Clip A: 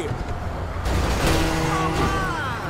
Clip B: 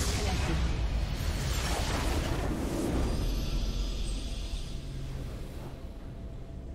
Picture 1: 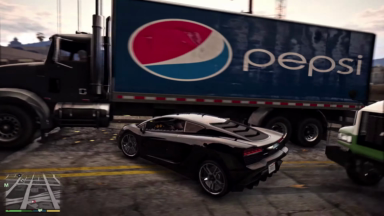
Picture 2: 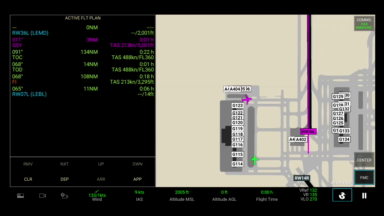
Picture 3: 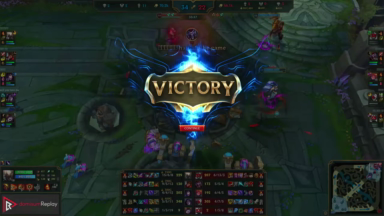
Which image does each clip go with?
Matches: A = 1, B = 3